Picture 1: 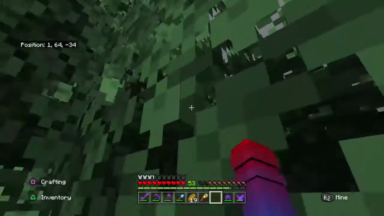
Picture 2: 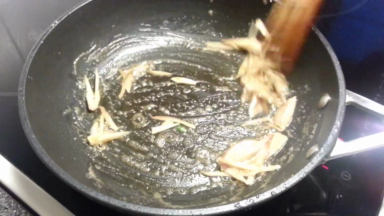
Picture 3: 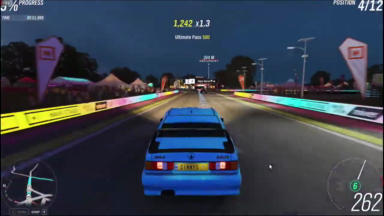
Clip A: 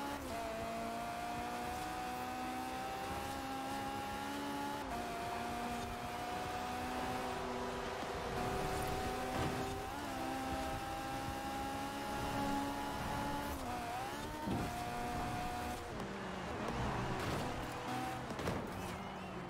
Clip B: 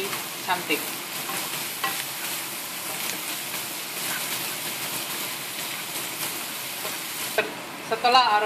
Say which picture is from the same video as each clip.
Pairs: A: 3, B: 2